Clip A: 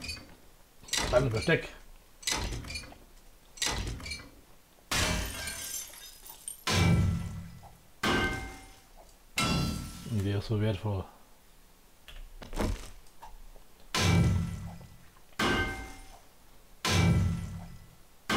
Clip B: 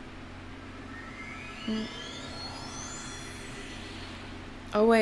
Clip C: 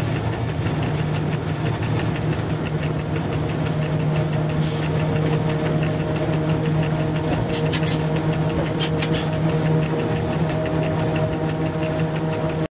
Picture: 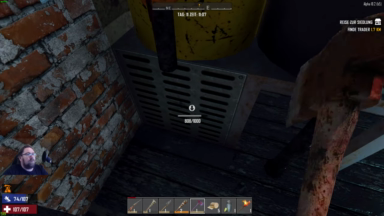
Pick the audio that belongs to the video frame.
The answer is A